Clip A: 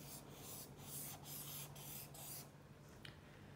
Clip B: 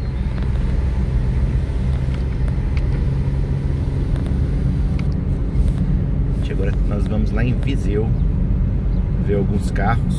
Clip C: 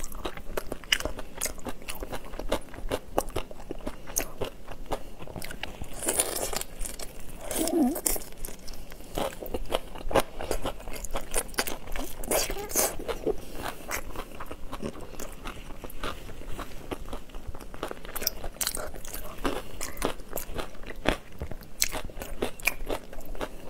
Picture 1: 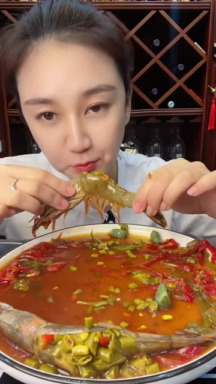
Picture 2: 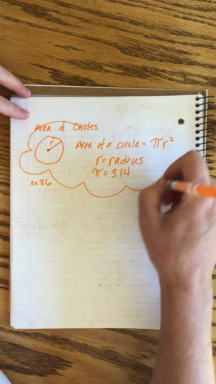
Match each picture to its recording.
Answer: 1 C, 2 A